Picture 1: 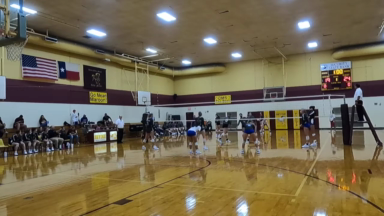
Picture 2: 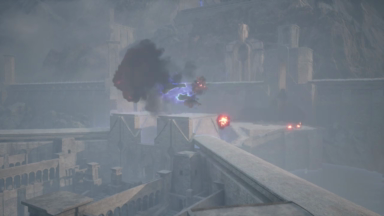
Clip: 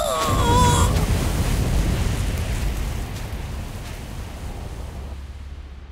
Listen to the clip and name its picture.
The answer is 2